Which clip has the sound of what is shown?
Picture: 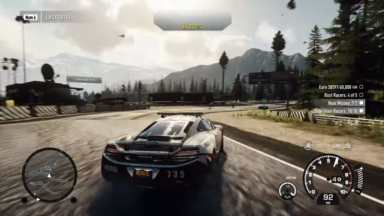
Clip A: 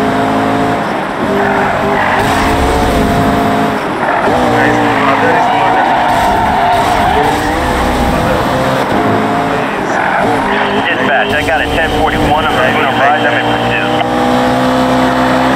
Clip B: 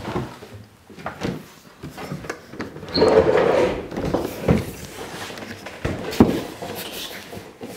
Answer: A